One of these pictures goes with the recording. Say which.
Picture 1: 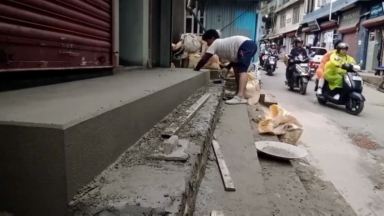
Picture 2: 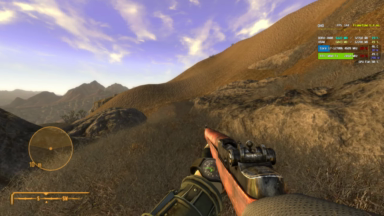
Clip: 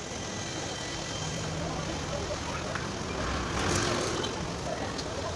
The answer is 1